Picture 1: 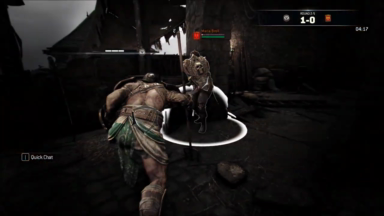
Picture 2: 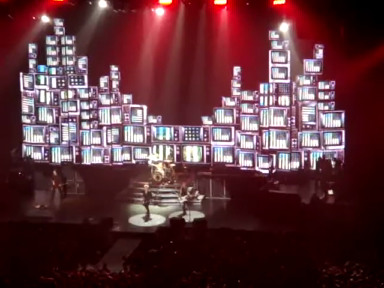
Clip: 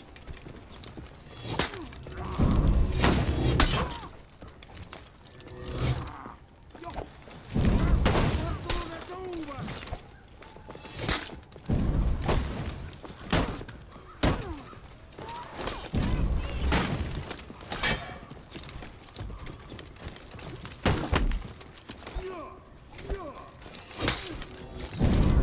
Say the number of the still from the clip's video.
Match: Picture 1